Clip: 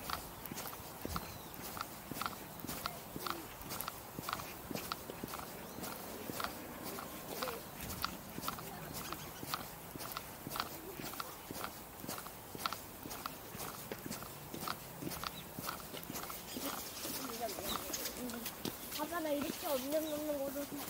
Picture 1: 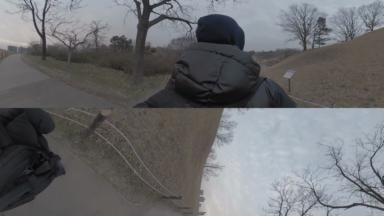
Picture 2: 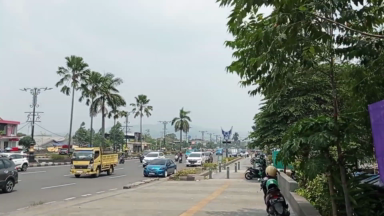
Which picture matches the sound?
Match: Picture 1